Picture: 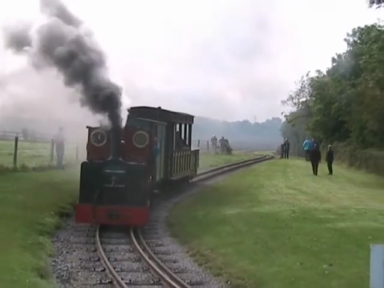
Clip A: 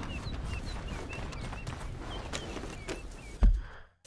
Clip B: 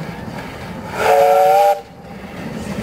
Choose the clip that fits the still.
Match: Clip B